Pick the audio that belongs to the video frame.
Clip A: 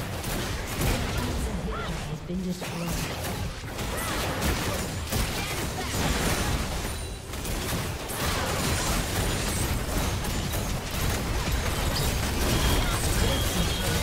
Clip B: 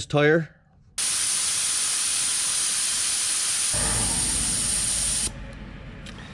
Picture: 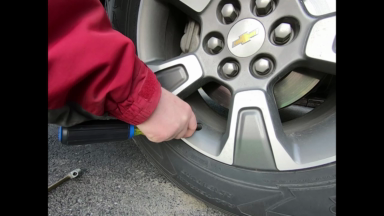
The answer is B